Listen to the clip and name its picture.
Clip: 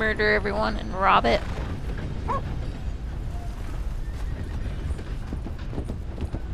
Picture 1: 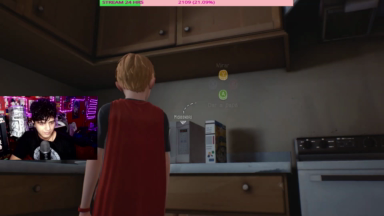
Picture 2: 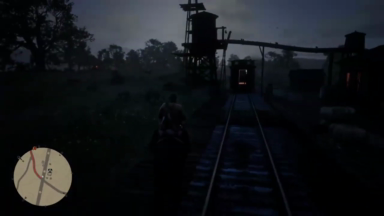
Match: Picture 2